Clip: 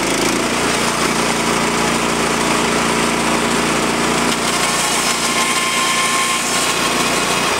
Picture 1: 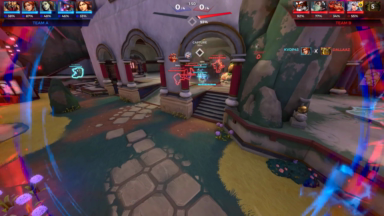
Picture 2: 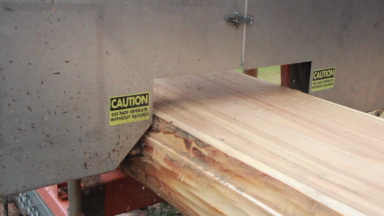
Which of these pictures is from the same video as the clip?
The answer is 2